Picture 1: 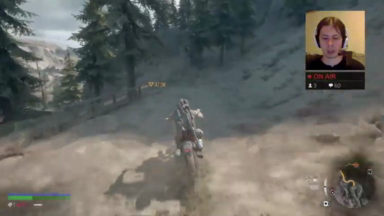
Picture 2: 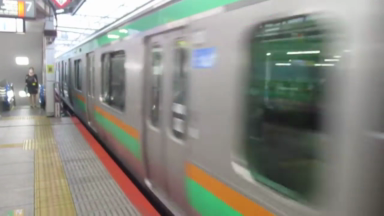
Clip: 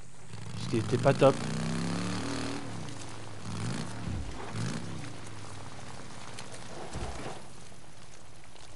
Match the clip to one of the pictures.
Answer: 1